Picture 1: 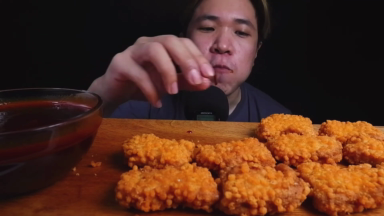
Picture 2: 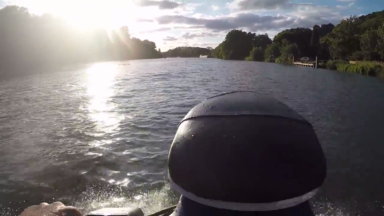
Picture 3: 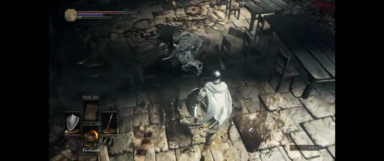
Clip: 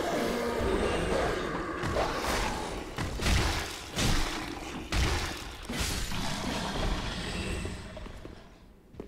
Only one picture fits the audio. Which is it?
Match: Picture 3